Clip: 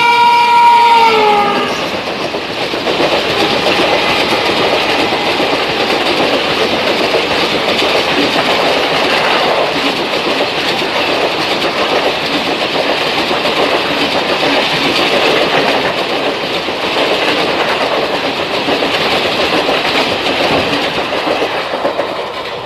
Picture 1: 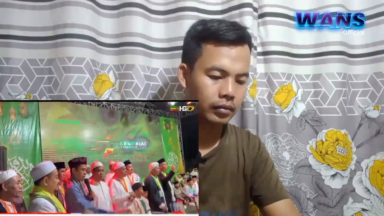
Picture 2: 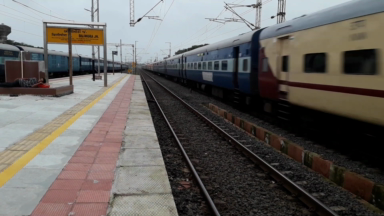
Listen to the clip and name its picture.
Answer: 2